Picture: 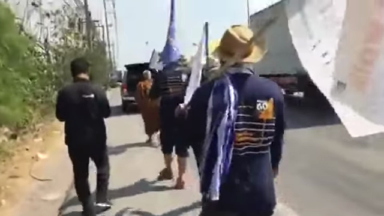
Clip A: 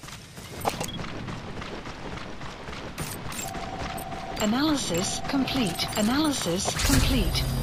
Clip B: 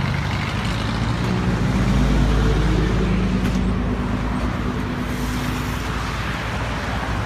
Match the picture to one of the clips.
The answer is B